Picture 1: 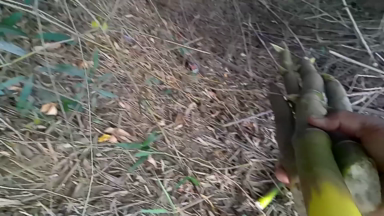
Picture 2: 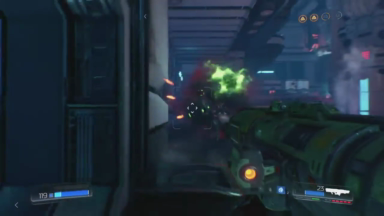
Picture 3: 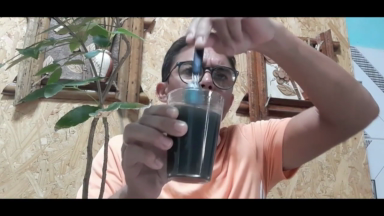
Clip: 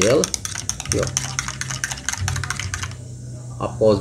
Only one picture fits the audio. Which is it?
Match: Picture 3